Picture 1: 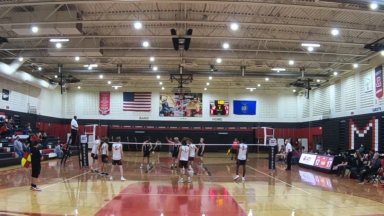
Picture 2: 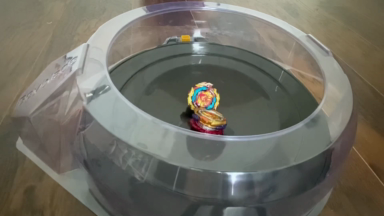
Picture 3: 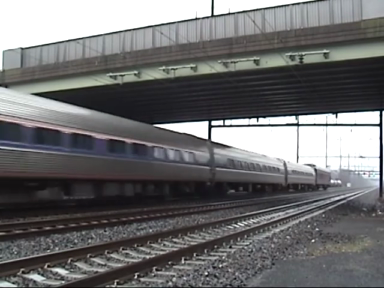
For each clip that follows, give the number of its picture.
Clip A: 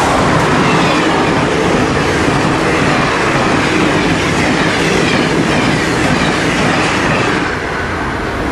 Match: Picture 3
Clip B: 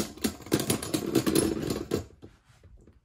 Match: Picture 2